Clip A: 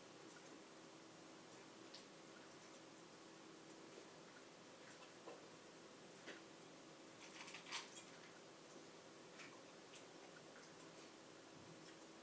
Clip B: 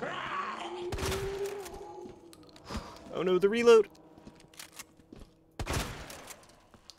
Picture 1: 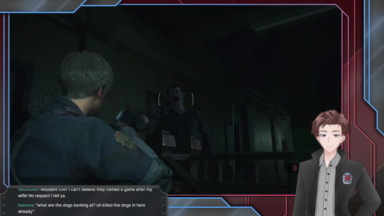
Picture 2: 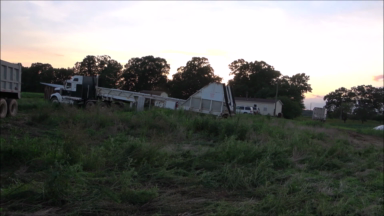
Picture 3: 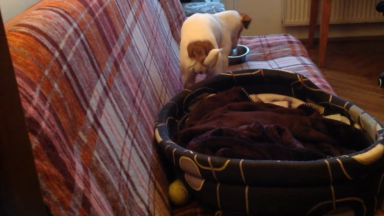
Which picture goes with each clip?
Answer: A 3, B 1